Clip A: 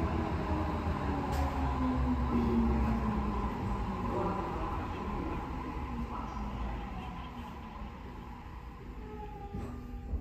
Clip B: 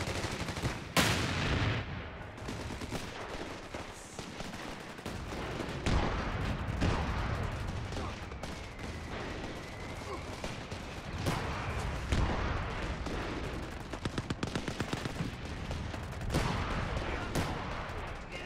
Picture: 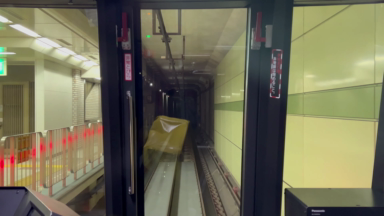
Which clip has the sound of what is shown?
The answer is A